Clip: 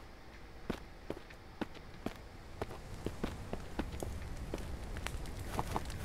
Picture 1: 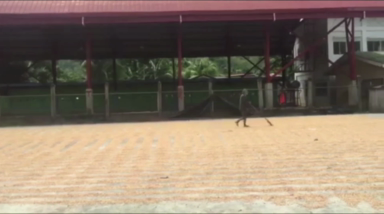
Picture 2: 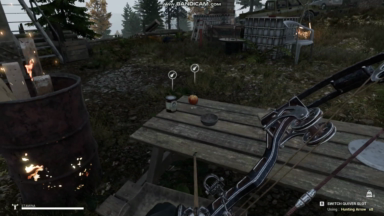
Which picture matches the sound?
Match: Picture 2